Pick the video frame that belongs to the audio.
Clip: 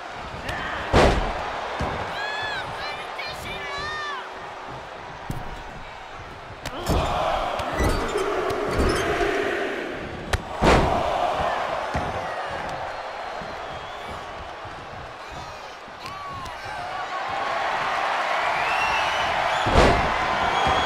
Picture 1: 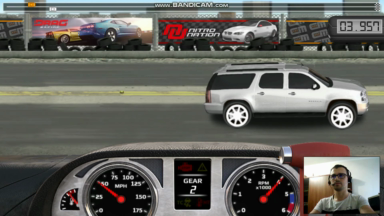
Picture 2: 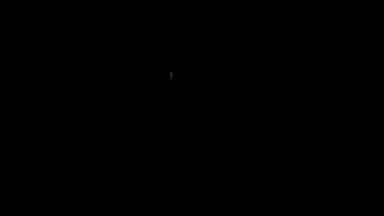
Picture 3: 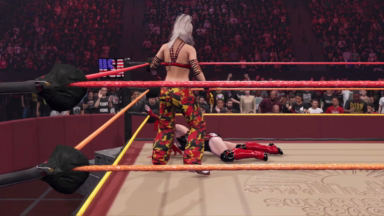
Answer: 3